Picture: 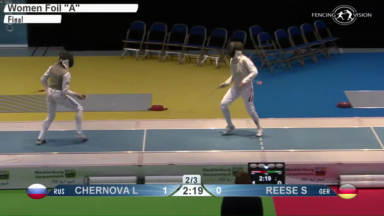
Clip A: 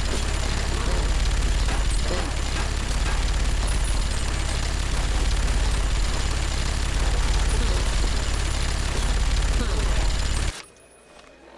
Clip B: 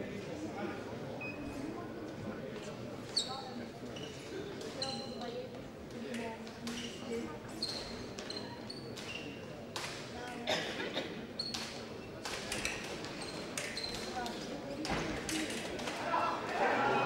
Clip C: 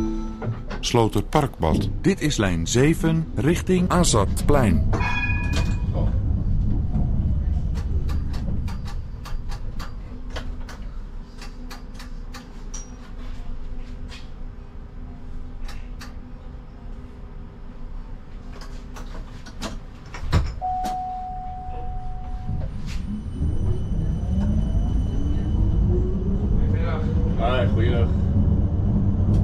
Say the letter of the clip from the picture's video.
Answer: B